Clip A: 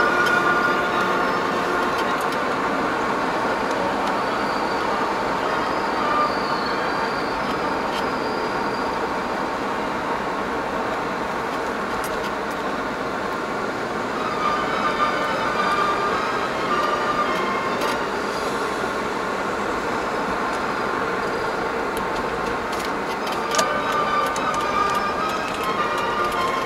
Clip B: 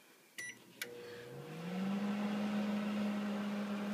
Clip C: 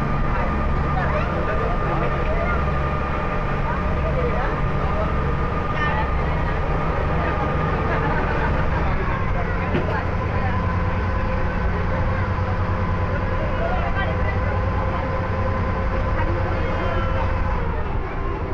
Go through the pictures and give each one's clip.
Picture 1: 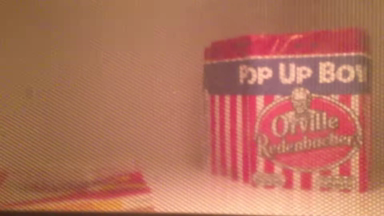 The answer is B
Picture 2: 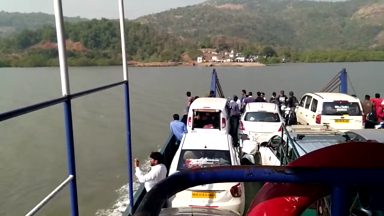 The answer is C